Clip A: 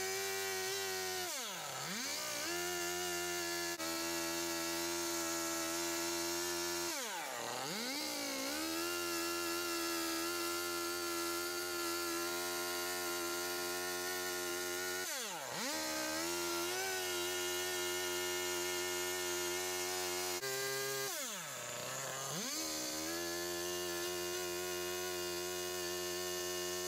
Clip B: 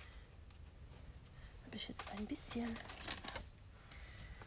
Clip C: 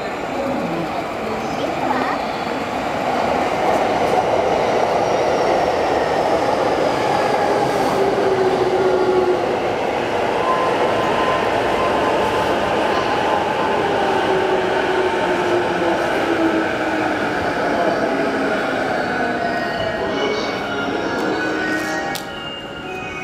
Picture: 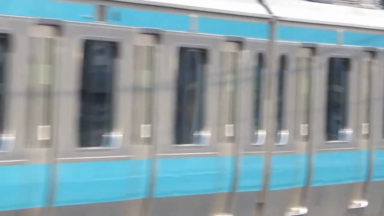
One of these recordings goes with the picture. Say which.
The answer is C